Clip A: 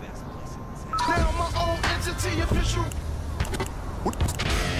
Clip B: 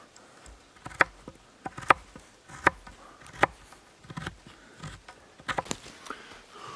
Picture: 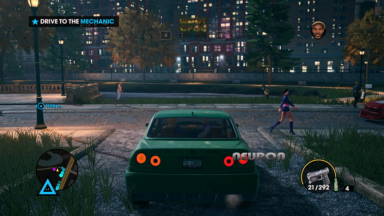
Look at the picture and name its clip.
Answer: A